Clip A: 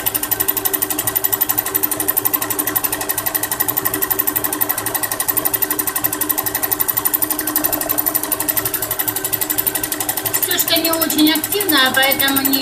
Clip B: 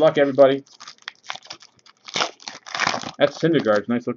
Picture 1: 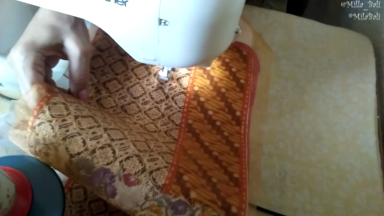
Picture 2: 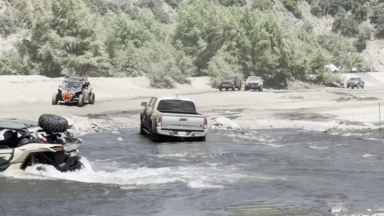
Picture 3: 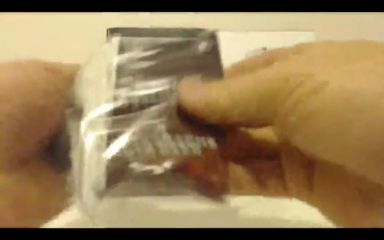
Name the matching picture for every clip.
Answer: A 1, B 3